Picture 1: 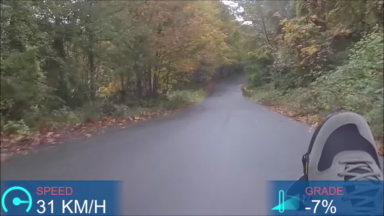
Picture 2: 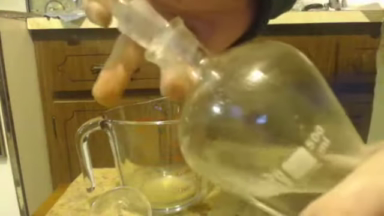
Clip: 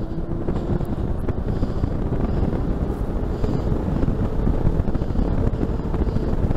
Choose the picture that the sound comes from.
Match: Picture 1